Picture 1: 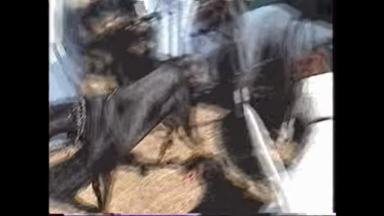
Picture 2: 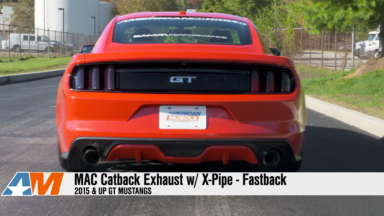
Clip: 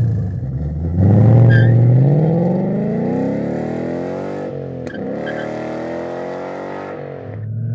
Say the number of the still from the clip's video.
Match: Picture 2